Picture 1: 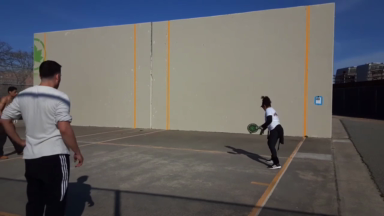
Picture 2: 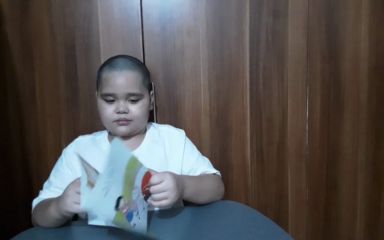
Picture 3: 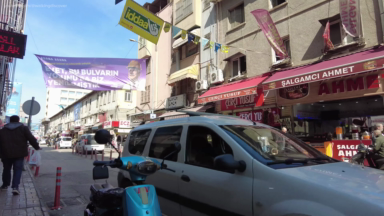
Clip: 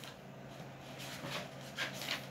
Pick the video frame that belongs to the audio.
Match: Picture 2